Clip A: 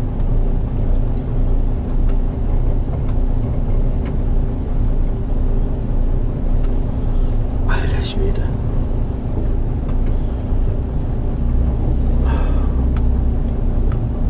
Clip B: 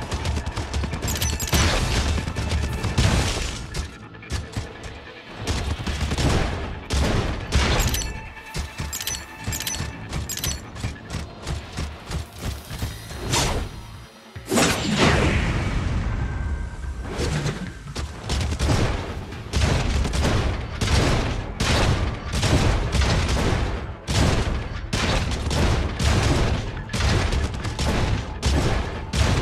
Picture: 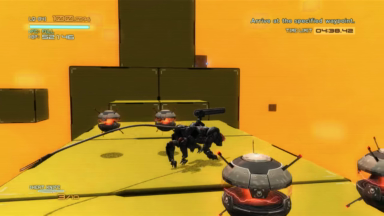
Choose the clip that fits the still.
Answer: B